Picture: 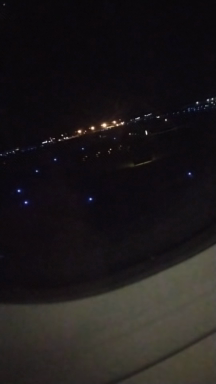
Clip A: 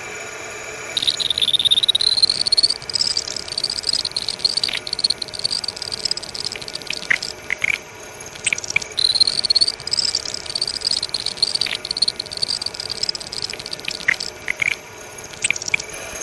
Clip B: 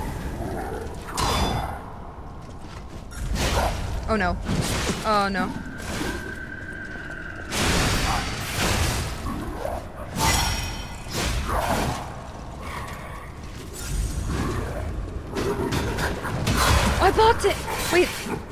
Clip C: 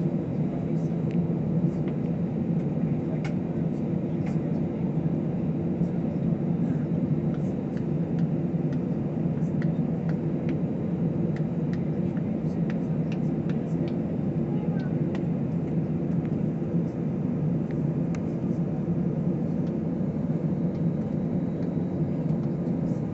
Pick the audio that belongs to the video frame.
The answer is C